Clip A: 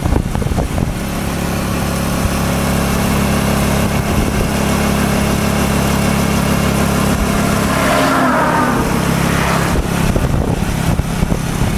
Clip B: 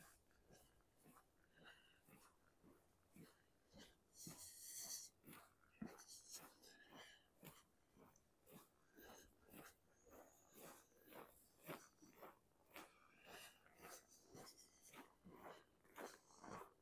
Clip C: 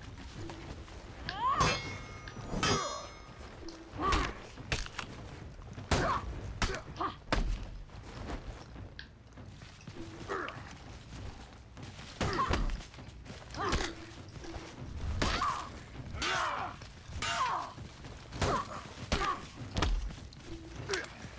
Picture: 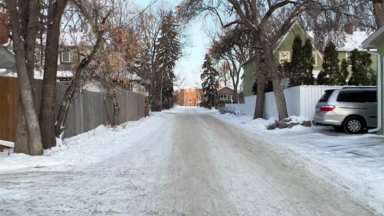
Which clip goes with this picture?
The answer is B